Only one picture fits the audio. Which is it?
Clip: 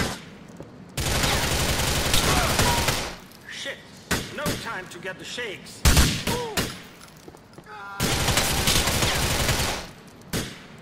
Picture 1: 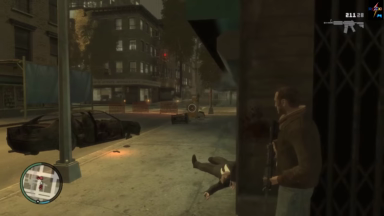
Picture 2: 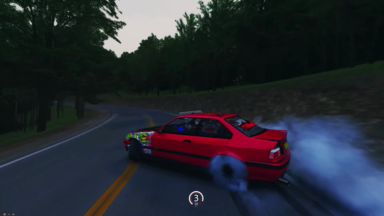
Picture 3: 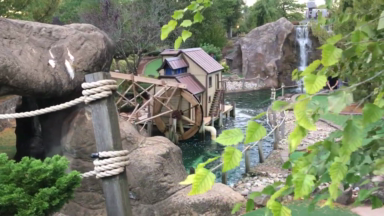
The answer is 1